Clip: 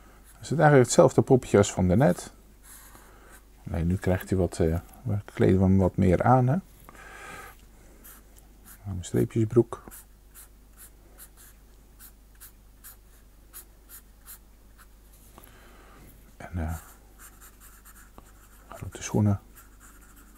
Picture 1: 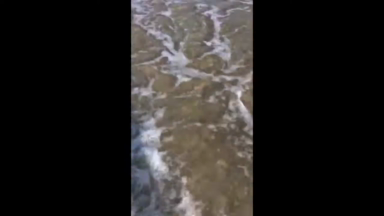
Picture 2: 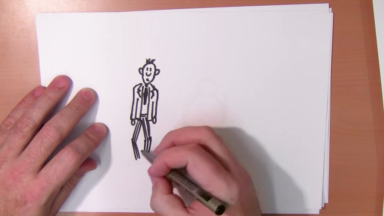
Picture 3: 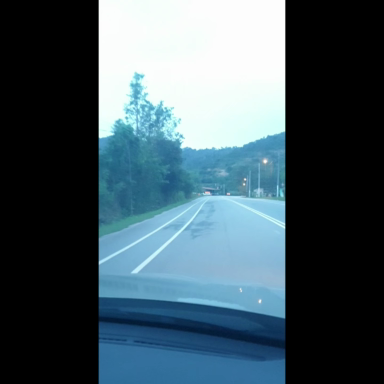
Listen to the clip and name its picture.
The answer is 2